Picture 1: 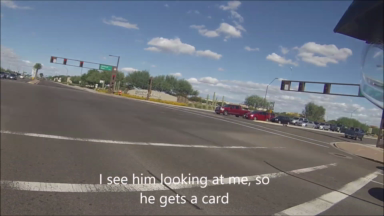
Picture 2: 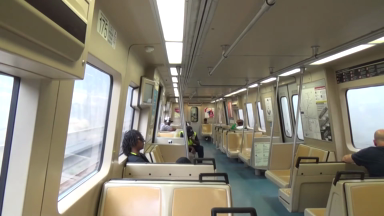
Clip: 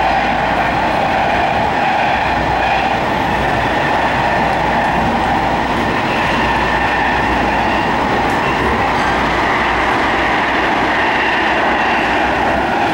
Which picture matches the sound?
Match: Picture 2